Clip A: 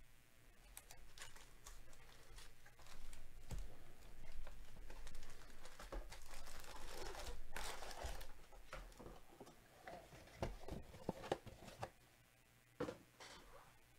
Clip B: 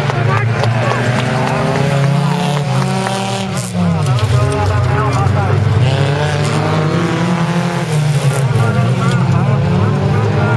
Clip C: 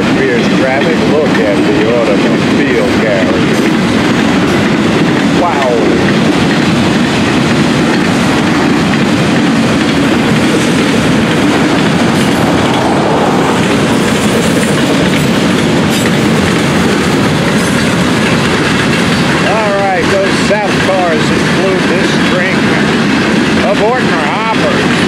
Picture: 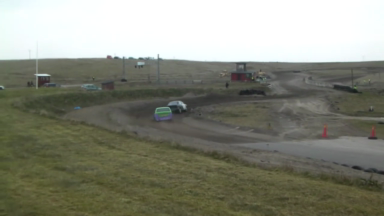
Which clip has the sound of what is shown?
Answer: B